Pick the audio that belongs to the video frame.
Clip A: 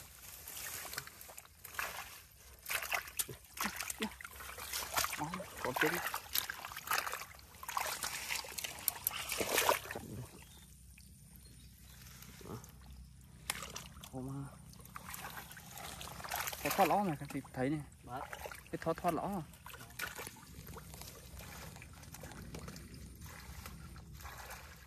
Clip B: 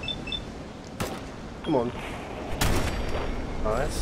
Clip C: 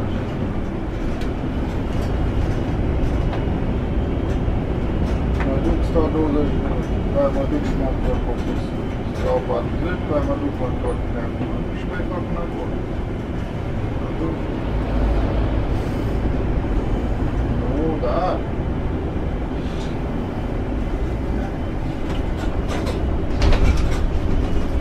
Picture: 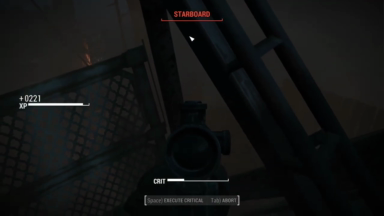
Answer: B